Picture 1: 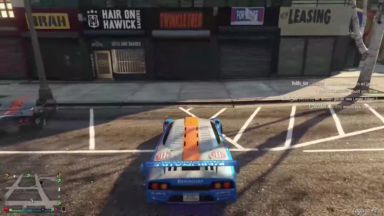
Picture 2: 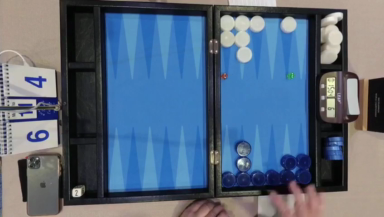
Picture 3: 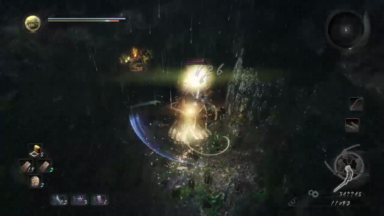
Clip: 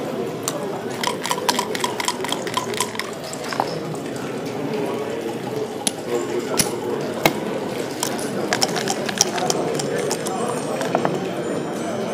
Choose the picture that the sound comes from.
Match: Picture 2